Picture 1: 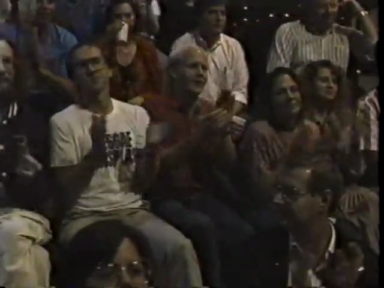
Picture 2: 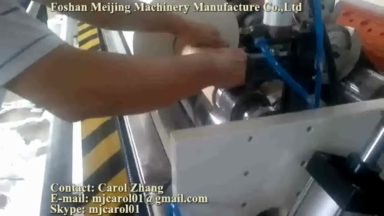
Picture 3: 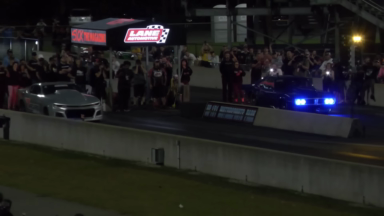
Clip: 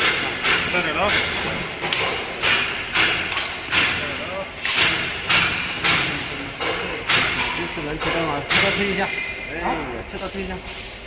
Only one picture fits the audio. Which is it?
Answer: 2